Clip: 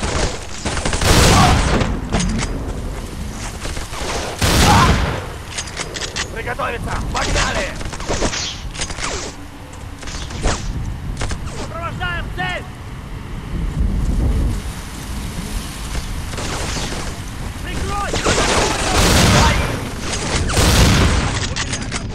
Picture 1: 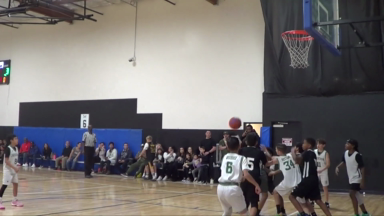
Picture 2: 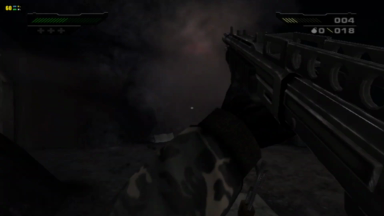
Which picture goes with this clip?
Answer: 2